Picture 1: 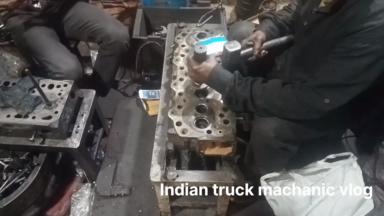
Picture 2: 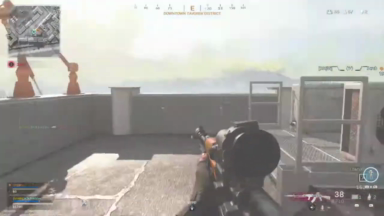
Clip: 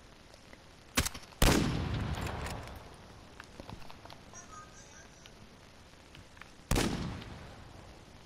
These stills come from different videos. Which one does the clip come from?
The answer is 2